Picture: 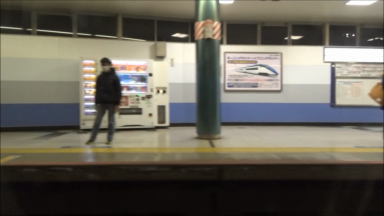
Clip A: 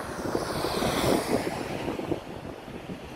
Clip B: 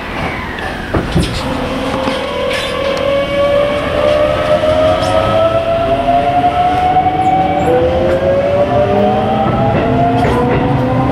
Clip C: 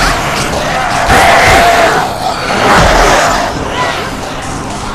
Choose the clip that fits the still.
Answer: B